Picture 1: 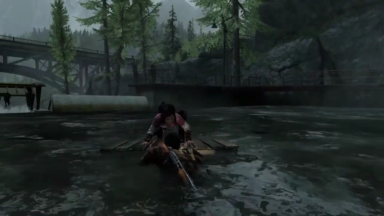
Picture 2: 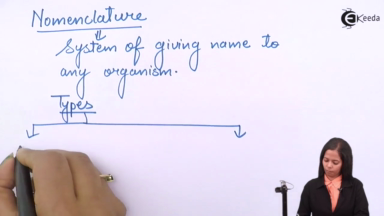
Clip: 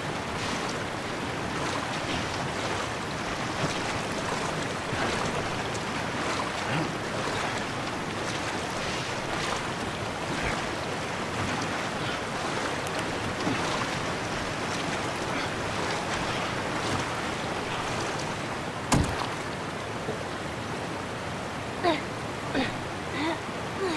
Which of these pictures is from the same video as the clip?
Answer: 1